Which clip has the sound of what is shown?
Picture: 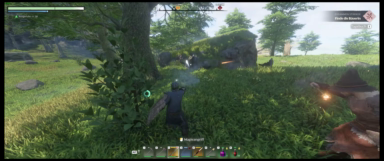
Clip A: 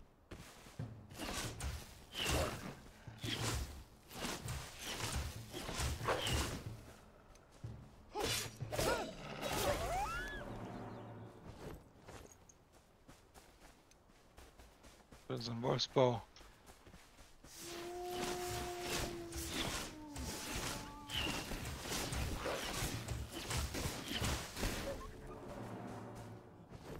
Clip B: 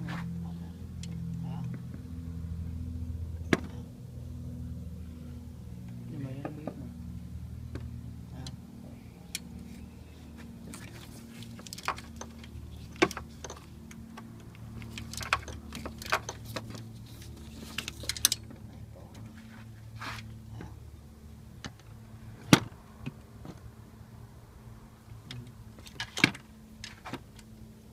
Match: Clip A